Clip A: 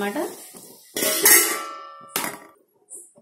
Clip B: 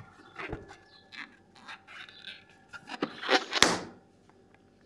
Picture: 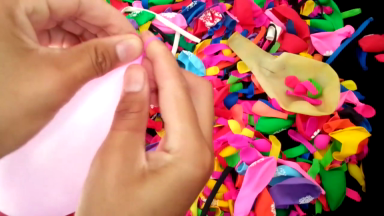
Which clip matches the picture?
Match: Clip B